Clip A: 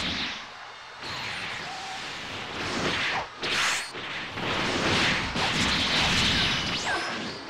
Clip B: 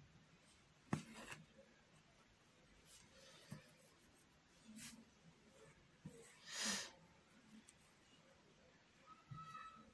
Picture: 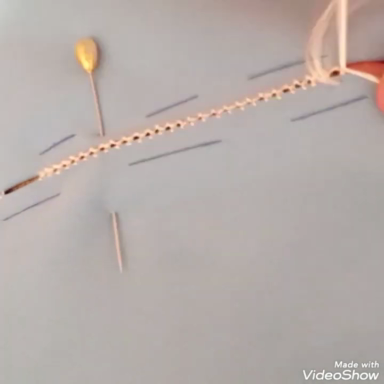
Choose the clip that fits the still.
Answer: B